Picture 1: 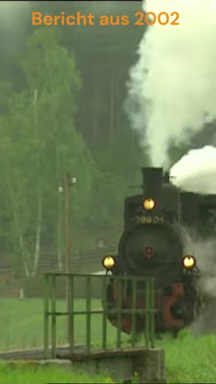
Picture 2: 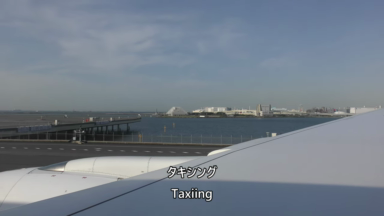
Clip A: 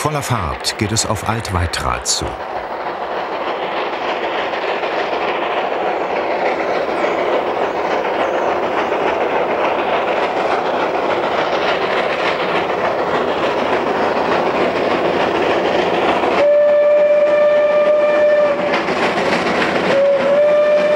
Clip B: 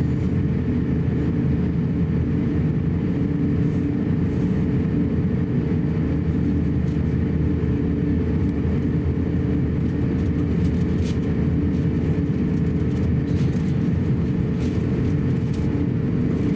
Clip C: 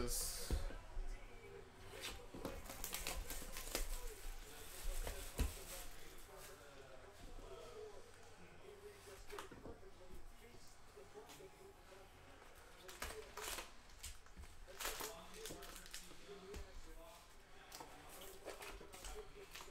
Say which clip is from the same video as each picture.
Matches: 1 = A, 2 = B